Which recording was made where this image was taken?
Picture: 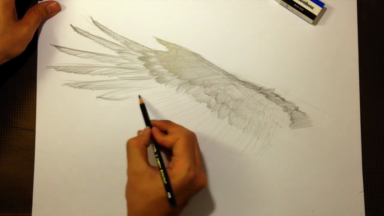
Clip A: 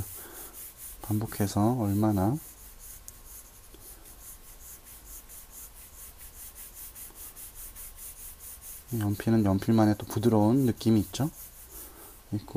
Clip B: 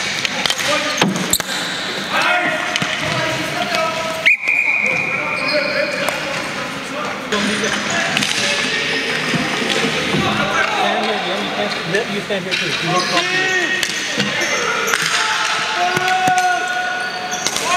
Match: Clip A